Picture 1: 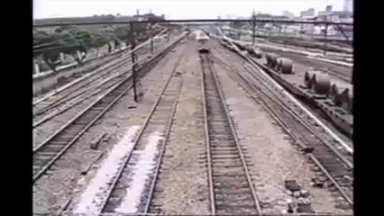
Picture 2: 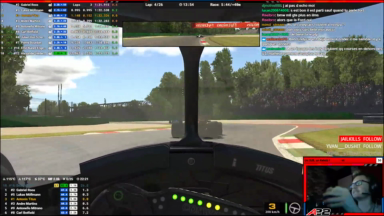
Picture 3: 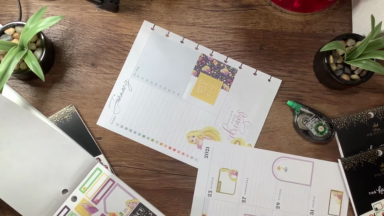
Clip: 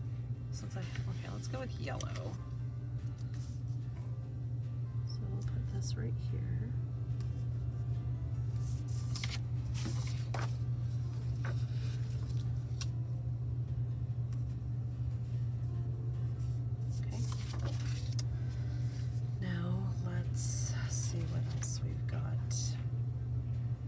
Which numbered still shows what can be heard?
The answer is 3